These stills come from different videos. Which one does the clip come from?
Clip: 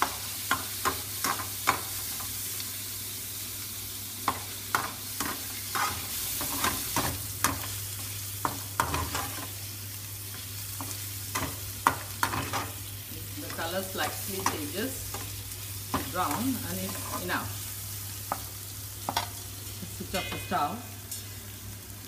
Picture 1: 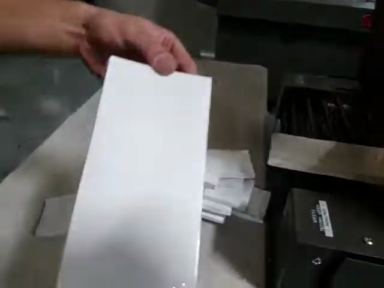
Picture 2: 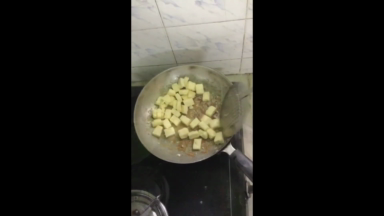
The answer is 2